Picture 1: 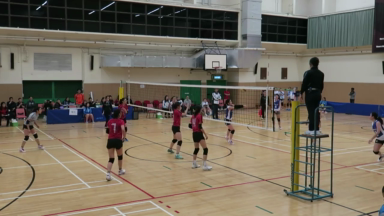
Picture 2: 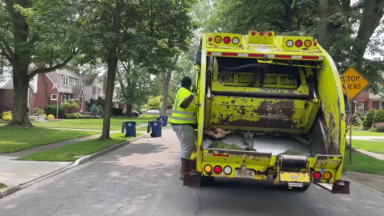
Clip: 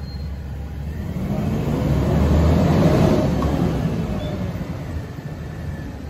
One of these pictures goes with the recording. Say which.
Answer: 2